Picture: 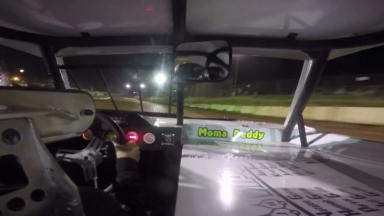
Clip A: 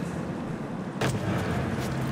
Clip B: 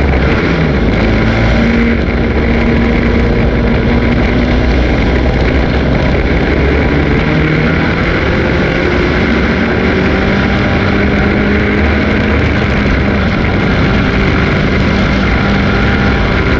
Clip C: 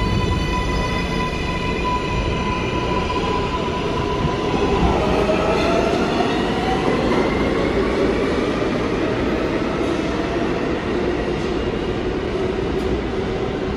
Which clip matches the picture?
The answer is B